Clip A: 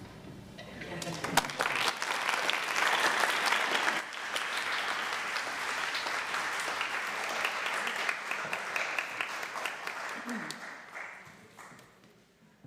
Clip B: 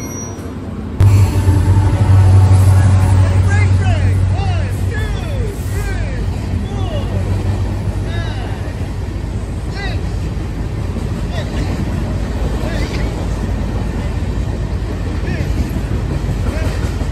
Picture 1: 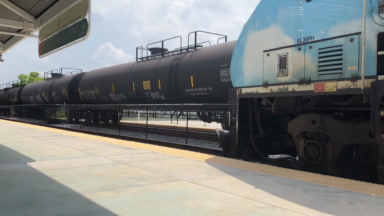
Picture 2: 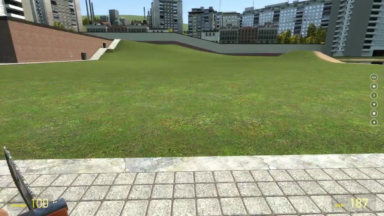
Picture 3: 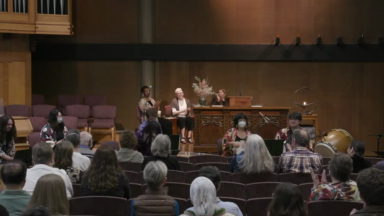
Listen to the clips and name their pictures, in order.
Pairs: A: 3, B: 1